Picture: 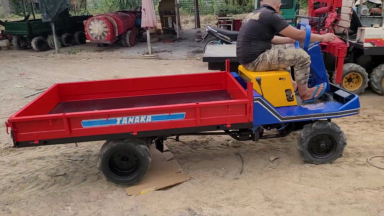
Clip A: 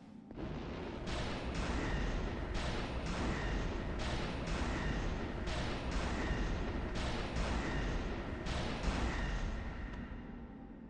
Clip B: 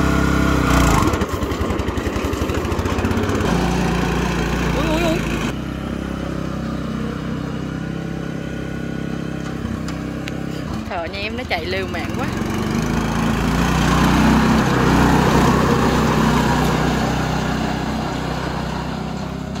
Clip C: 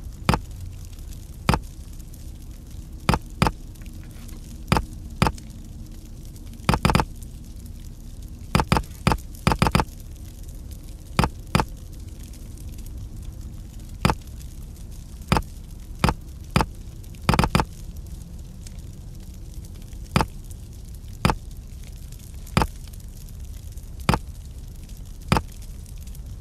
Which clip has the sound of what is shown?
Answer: B